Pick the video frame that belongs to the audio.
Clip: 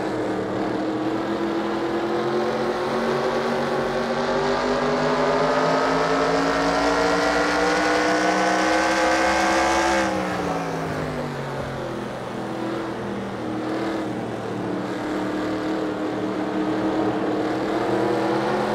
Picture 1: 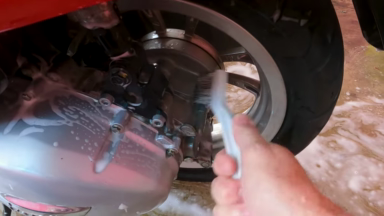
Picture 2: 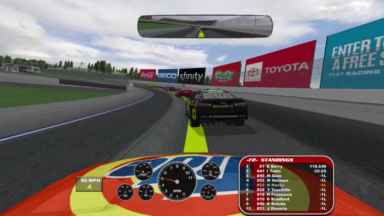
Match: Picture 2